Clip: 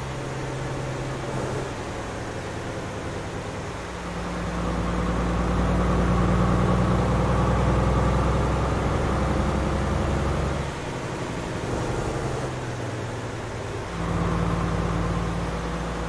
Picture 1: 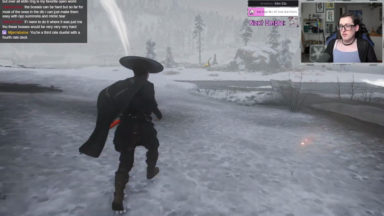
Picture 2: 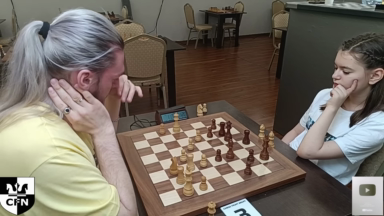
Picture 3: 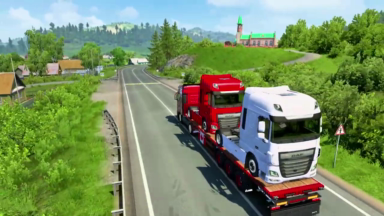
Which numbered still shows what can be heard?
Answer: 3